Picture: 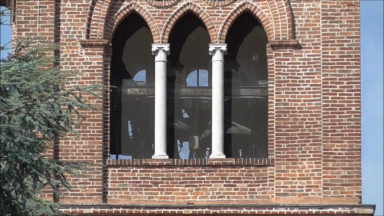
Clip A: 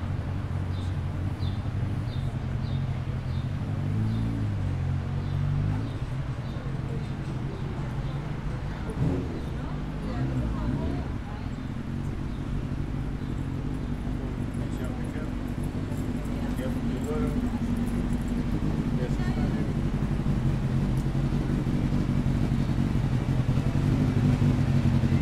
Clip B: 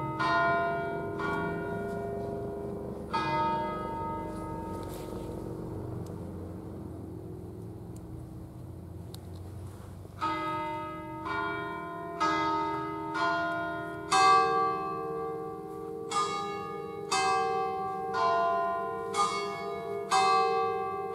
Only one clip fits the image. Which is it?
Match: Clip B